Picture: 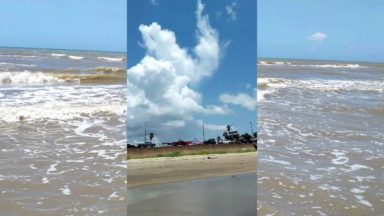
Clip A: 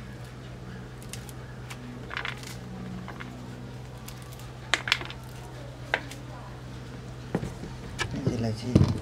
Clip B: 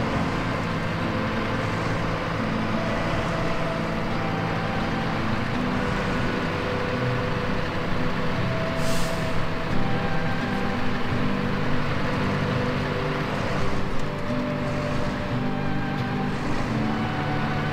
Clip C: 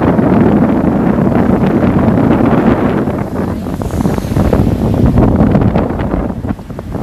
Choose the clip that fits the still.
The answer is C